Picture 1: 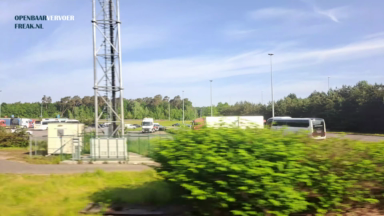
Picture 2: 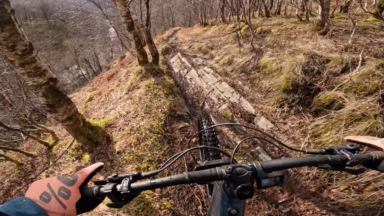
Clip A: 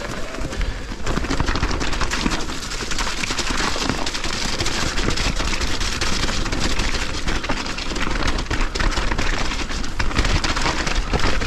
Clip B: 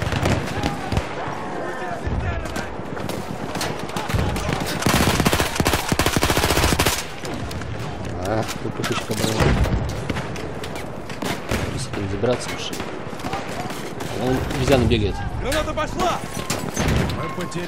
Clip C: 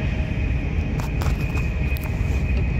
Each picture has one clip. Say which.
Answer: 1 C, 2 A